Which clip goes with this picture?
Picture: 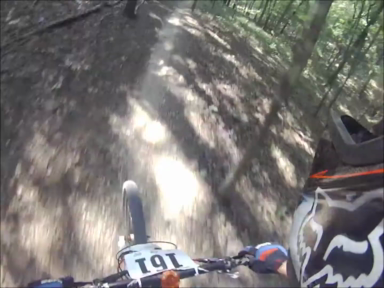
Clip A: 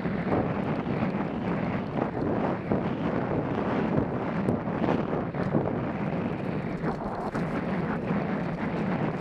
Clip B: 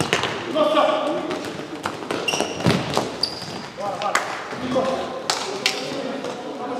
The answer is A